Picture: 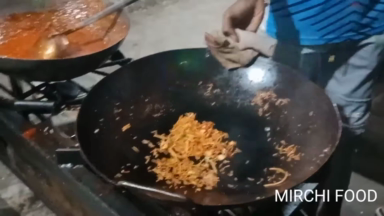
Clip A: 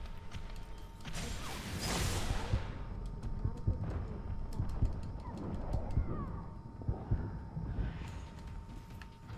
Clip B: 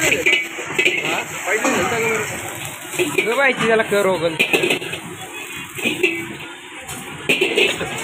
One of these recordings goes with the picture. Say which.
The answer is B